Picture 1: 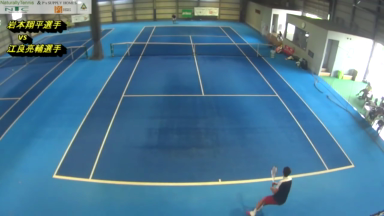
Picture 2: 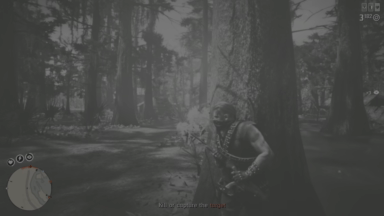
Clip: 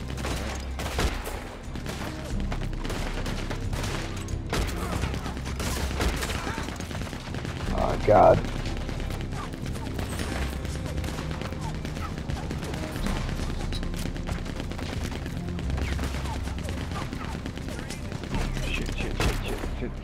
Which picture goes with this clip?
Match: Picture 2